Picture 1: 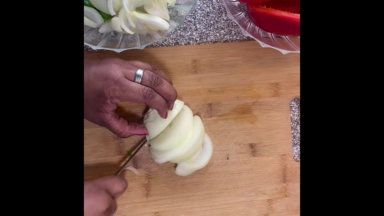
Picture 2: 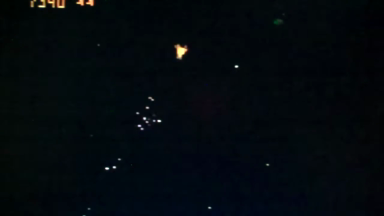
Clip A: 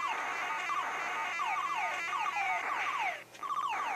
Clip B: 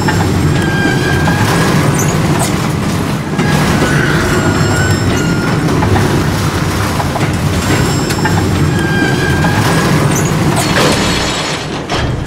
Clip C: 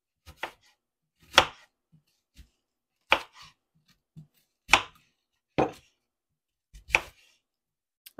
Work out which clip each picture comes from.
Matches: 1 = C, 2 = A